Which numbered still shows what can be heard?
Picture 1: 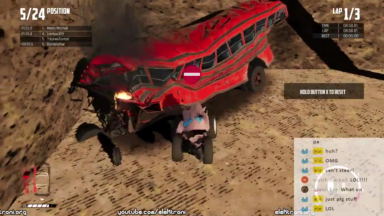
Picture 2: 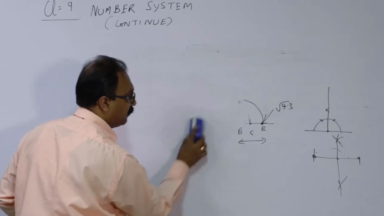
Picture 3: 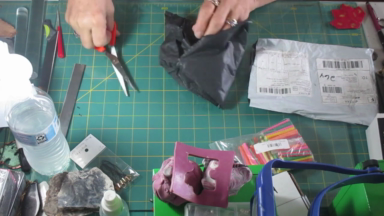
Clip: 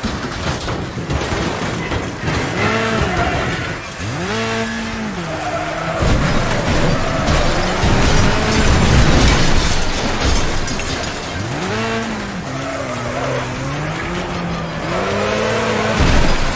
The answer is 1